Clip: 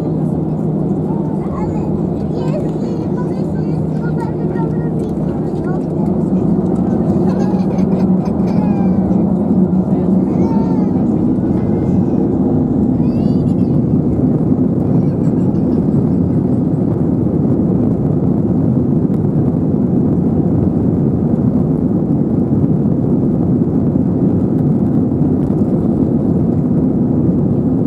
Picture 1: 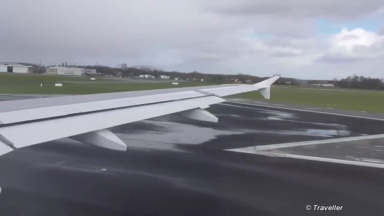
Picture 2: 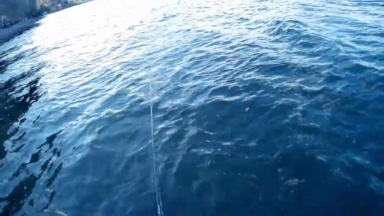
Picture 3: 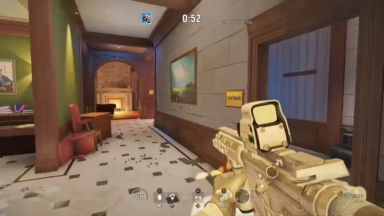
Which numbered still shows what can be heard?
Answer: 1